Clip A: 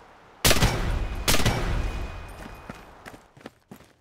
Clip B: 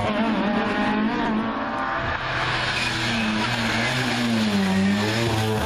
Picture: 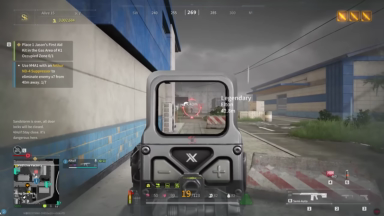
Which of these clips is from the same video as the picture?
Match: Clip A